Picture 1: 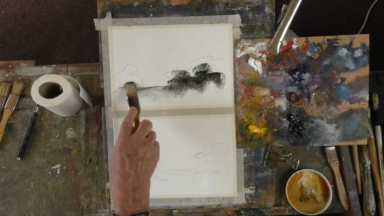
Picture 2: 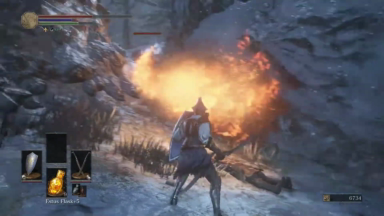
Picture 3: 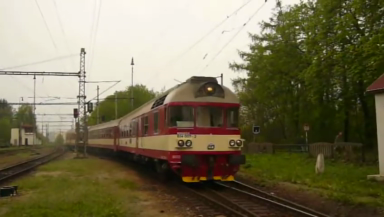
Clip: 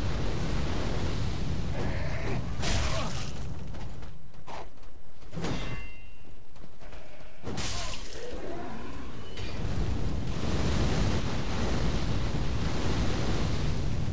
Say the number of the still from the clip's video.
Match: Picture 2